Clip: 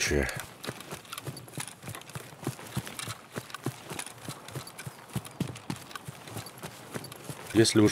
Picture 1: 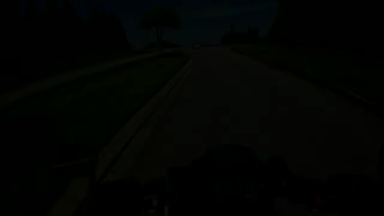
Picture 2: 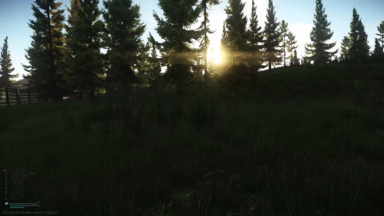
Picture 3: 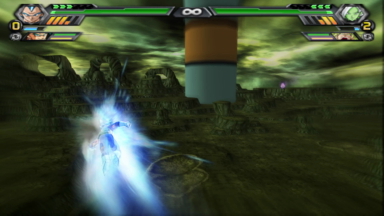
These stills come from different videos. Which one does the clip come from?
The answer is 2